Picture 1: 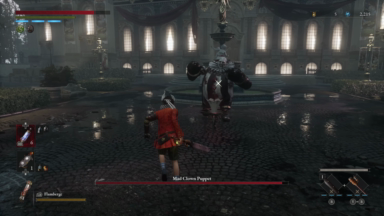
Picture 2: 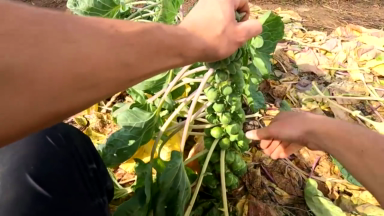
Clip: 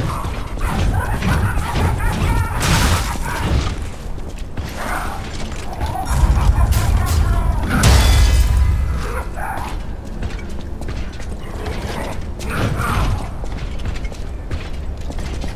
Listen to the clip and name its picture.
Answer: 1